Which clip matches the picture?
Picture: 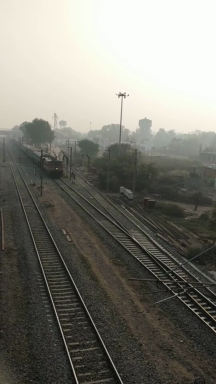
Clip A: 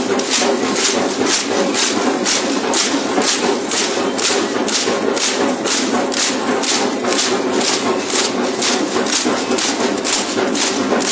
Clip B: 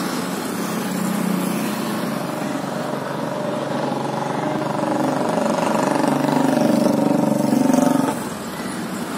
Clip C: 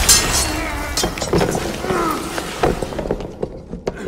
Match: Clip B